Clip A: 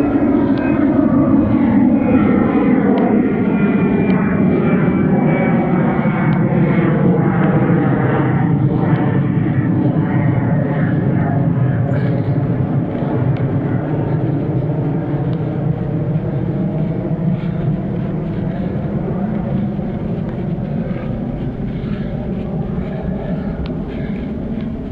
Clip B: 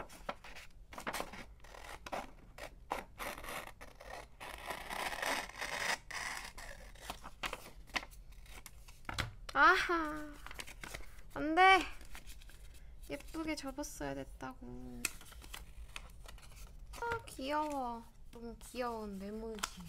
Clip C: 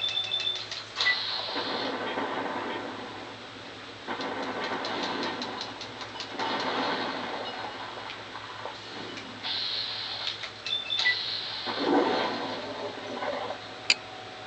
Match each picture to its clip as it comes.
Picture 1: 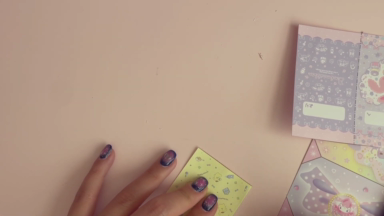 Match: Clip B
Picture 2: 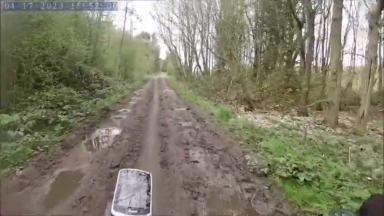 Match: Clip A